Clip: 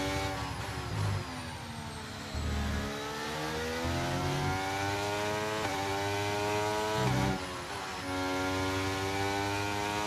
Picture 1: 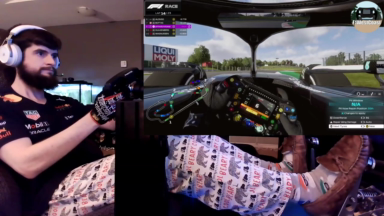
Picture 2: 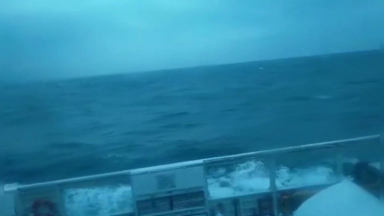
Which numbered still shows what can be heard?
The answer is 1